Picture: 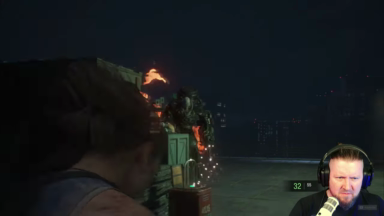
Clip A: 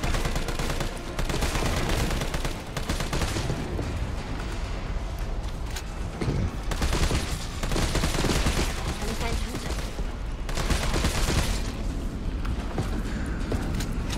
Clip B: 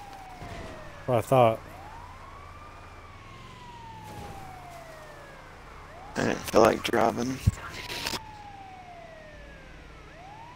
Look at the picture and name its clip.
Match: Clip A